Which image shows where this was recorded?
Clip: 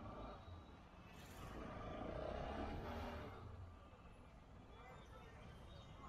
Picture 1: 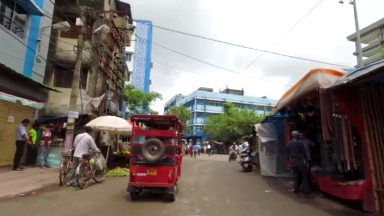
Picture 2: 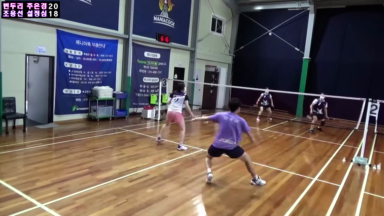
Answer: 1